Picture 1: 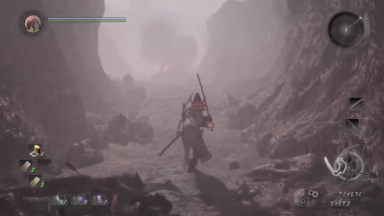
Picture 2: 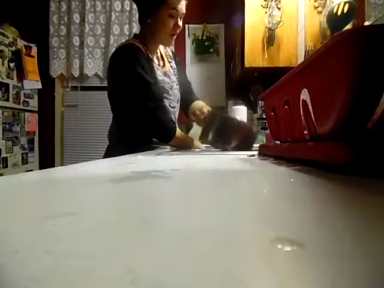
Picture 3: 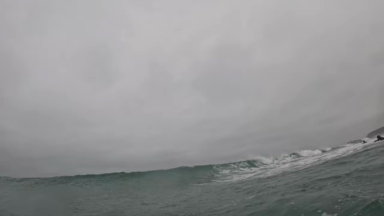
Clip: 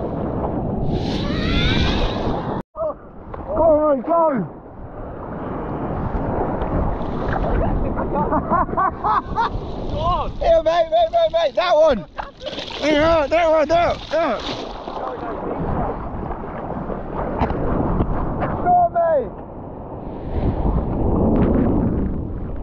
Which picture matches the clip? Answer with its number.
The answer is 3